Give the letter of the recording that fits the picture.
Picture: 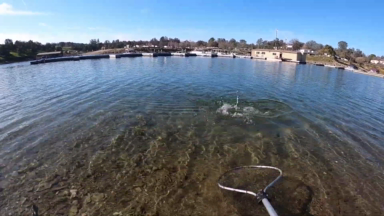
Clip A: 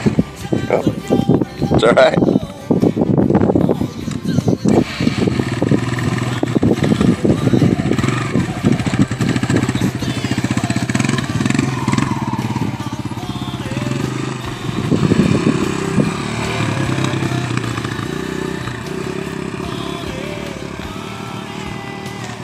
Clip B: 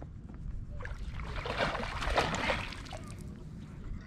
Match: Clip B